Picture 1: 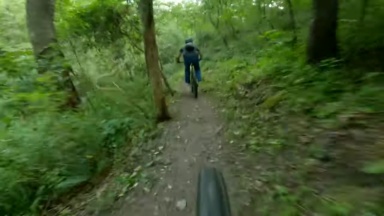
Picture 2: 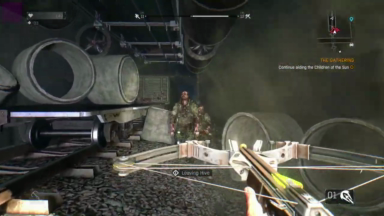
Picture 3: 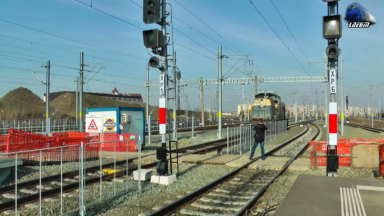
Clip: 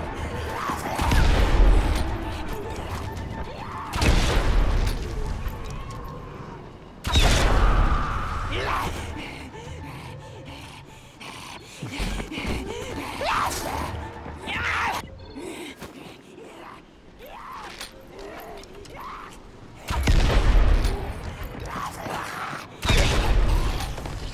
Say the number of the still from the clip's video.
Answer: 2